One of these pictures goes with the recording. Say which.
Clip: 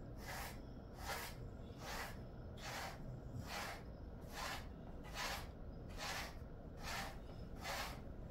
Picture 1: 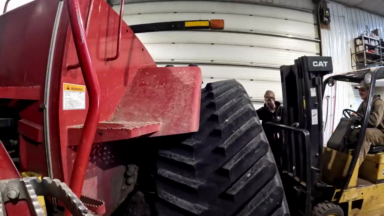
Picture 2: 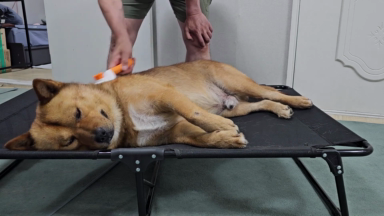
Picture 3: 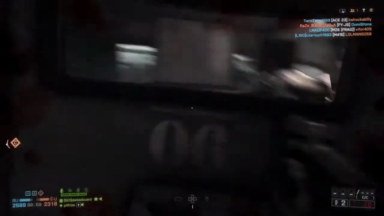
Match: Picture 2